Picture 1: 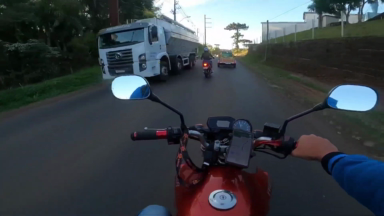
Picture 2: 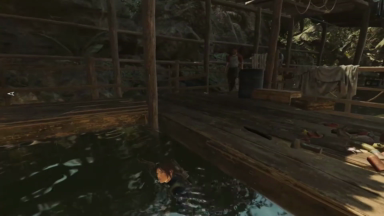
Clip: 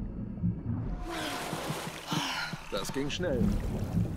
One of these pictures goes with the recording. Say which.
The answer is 2